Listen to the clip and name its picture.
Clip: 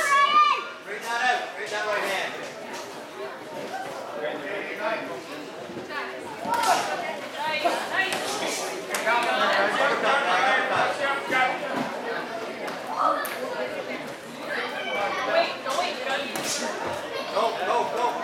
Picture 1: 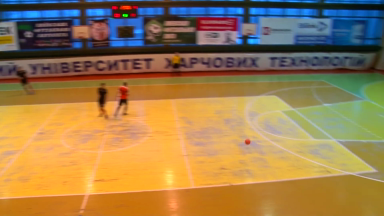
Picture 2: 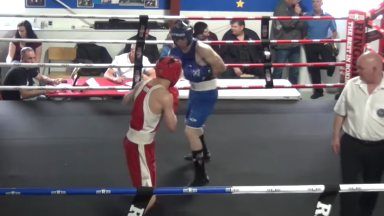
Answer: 2